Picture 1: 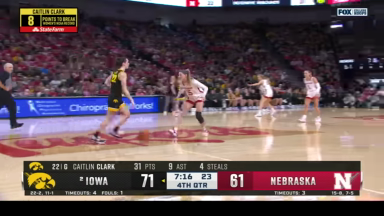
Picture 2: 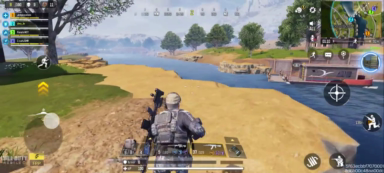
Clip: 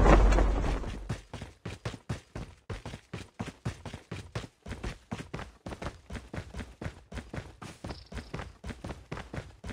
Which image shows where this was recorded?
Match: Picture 2